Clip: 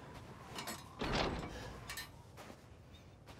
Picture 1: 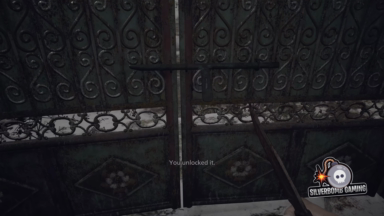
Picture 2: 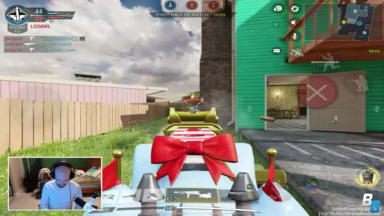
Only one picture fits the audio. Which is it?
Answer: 1